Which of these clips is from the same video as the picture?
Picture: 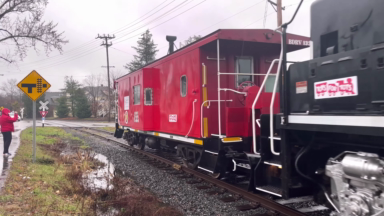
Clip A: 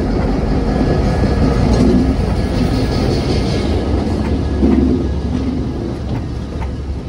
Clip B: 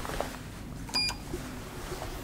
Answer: A